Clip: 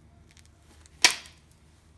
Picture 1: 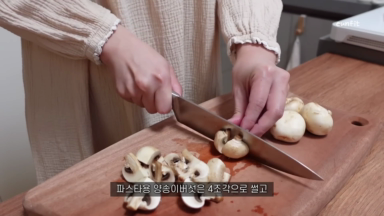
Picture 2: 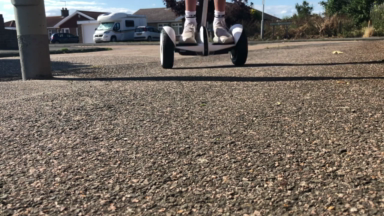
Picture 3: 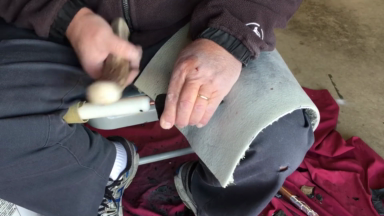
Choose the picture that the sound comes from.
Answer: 3